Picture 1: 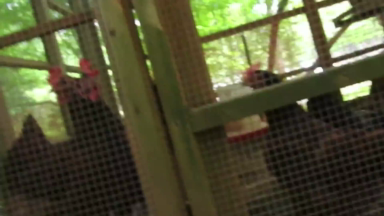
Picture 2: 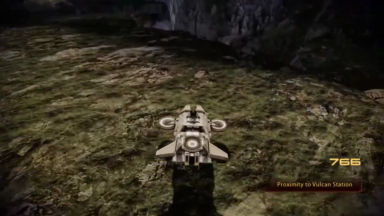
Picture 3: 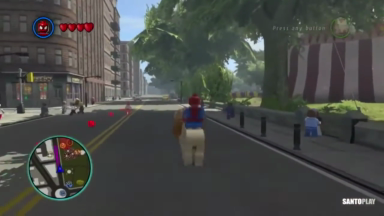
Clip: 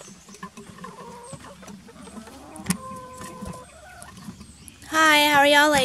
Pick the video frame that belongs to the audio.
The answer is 1